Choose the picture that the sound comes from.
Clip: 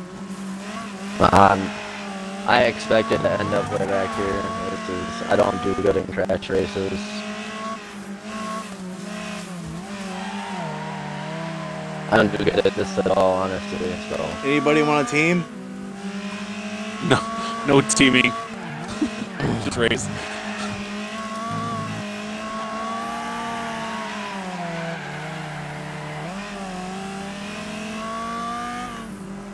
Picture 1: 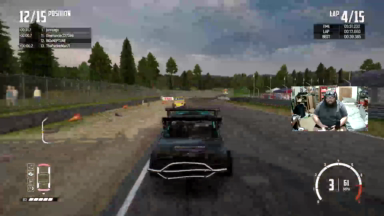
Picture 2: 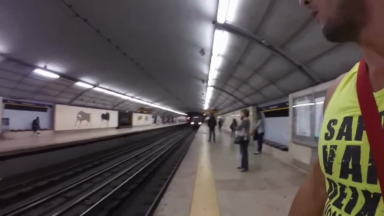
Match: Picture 1